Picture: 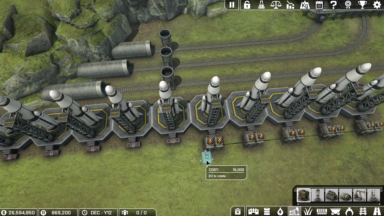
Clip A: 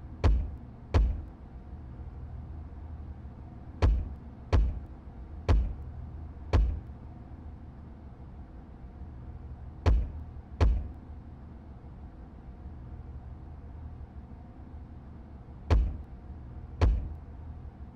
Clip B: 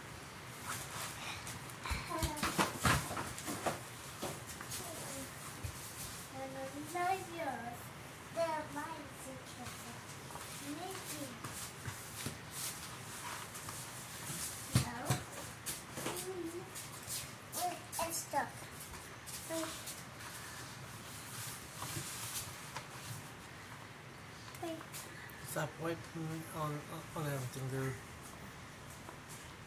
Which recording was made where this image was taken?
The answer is A